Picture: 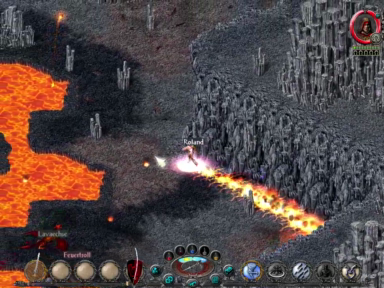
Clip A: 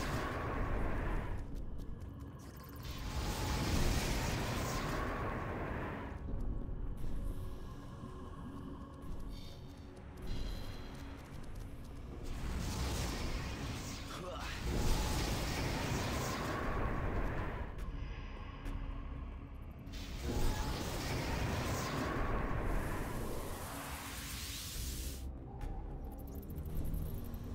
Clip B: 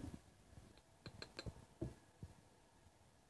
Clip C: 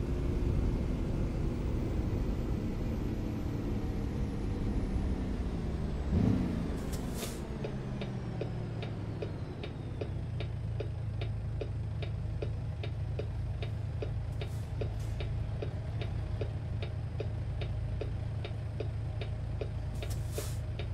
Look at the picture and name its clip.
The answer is A